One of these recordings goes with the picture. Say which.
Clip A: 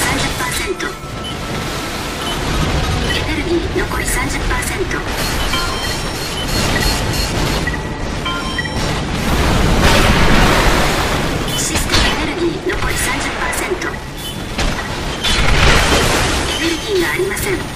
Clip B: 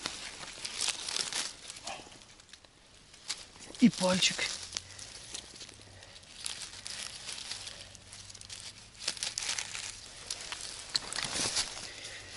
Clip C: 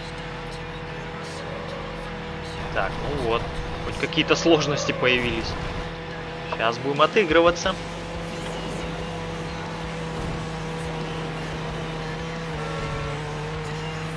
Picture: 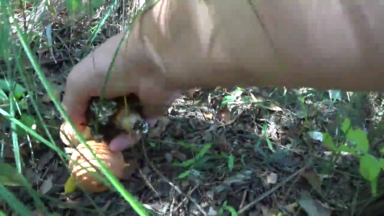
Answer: B